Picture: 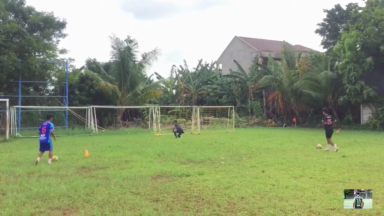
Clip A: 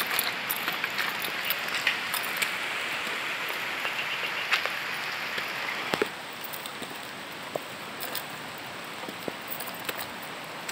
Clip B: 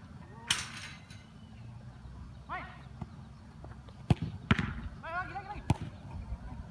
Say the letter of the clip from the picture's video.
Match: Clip B